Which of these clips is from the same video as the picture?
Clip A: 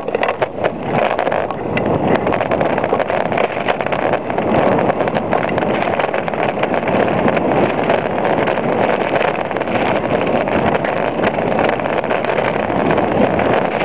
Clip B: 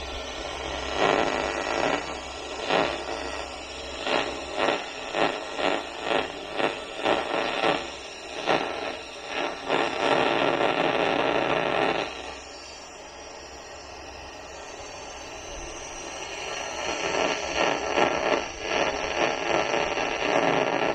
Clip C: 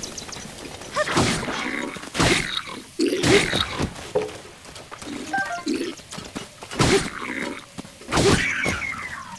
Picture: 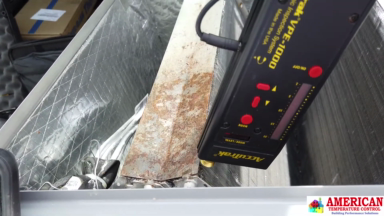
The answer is B